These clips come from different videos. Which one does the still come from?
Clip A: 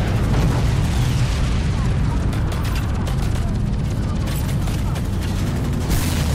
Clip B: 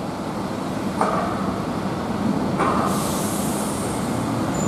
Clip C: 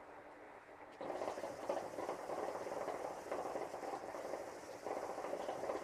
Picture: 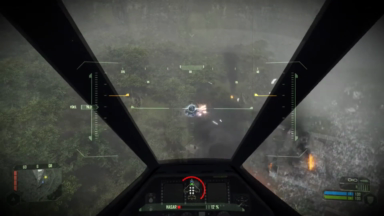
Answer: A